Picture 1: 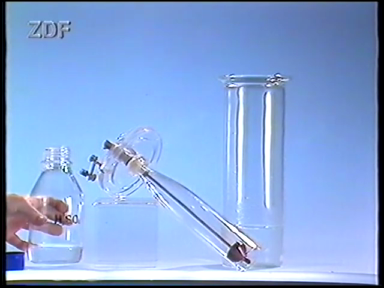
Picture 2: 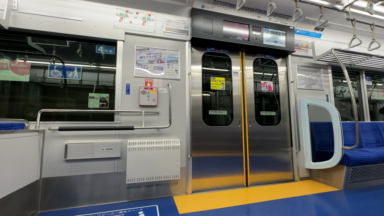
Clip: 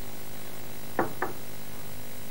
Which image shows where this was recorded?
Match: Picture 1